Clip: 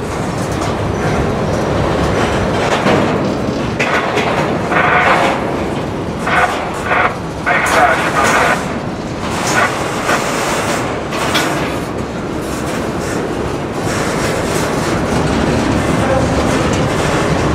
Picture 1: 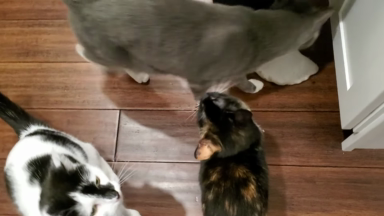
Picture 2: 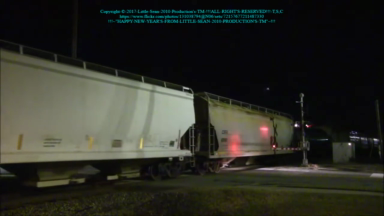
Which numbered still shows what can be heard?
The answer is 2